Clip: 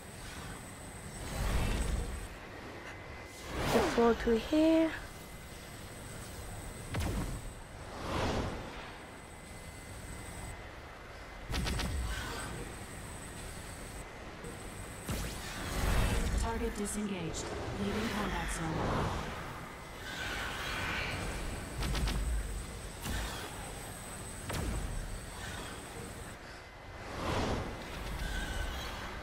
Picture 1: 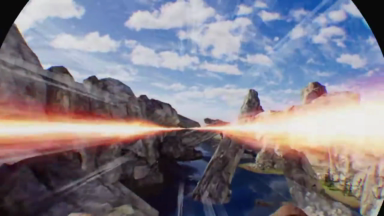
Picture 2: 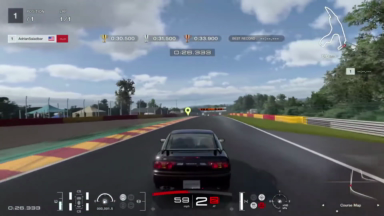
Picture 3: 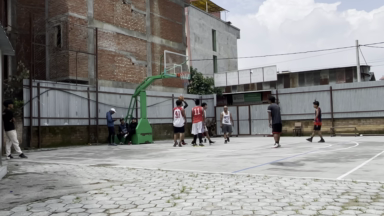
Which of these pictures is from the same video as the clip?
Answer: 1